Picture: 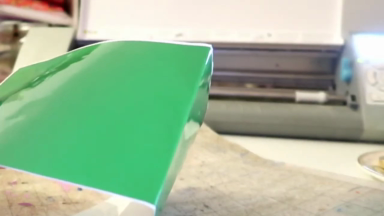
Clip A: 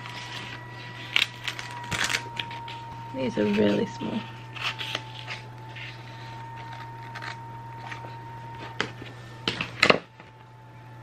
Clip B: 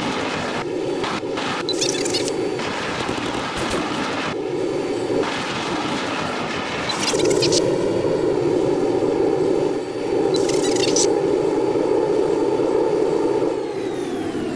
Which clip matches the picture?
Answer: A